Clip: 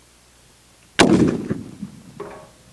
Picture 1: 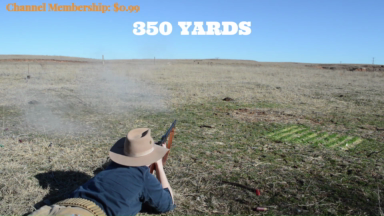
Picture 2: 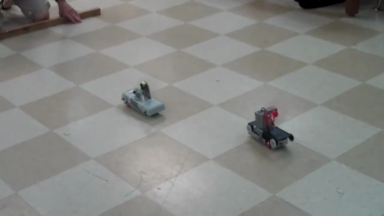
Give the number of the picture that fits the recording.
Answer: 1